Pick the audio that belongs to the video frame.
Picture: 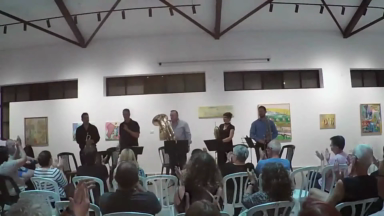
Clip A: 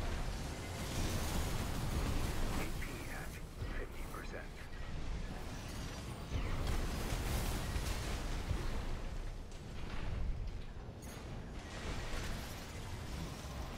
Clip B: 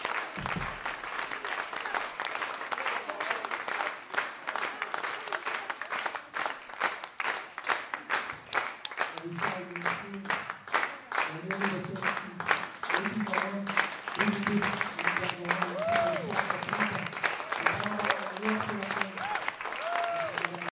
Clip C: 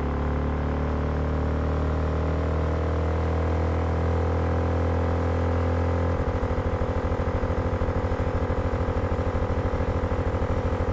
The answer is B